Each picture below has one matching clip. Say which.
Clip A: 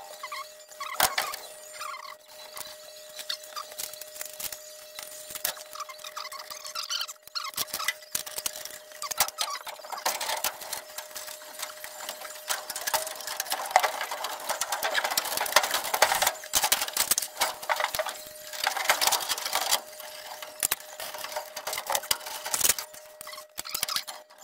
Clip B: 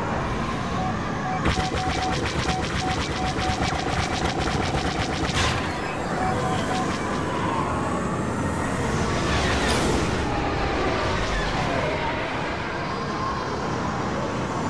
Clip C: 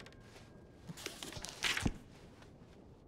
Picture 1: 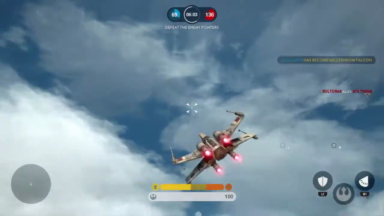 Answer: B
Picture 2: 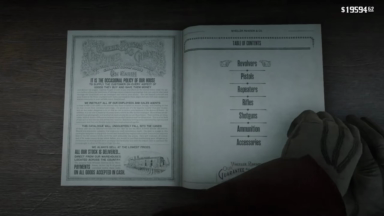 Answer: C